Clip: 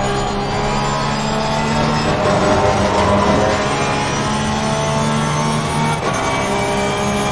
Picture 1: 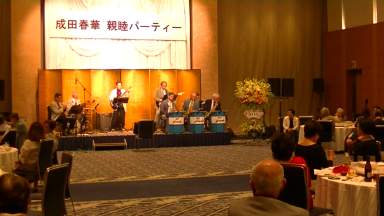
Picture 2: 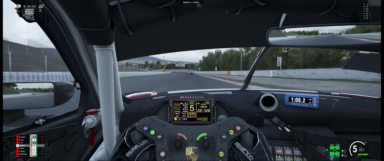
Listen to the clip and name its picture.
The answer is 2